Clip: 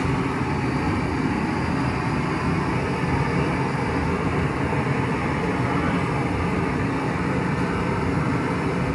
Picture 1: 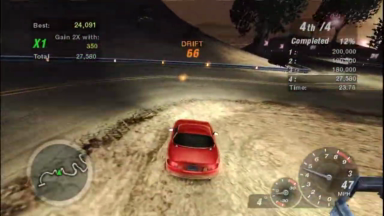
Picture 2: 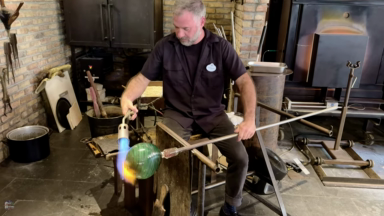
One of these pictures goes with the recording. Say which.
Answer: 2